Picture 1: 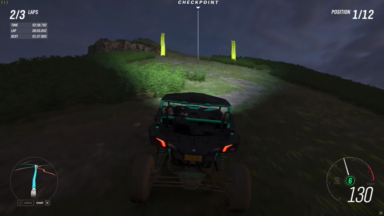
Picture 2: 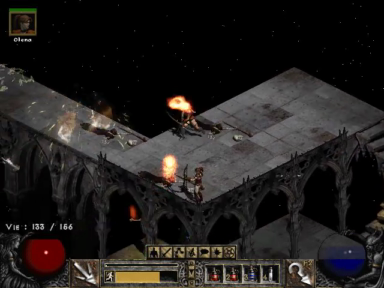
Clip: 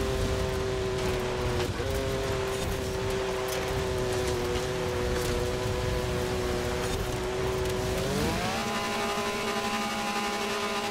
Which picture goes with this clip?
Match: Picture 1